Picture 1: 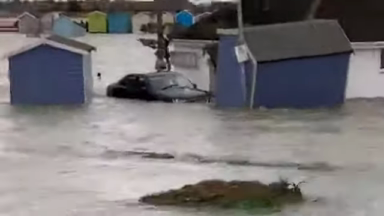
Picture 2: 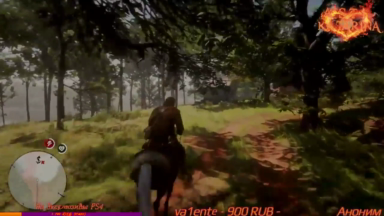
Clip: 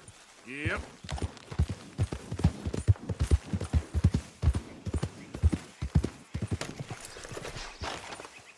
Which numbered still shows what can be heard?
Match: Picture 2